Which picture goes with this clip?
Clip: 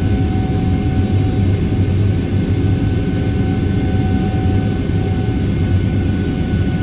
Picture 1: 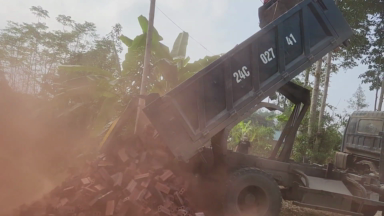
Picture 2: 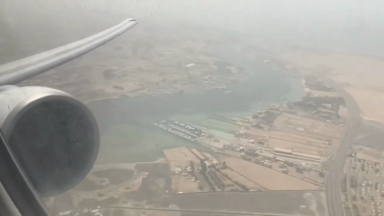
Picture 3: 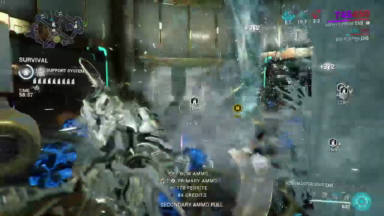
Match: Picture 2